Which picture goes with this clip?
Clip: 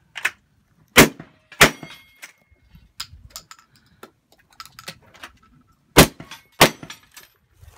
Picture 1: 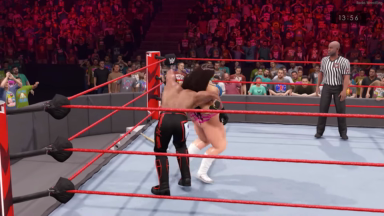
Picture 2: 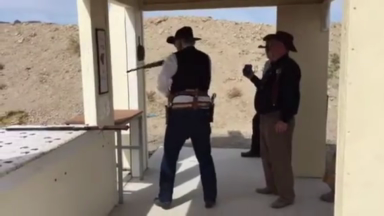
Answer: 2